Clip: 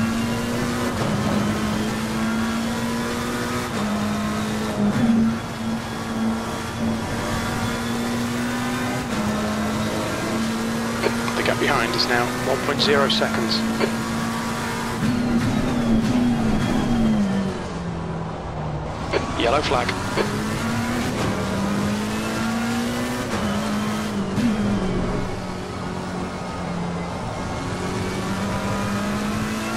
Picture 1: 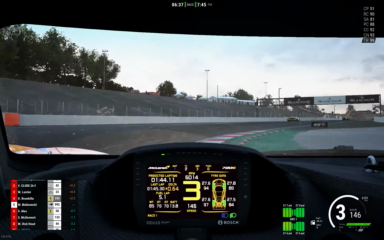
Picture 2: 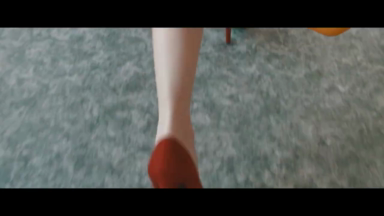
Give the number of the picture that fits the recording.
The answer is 1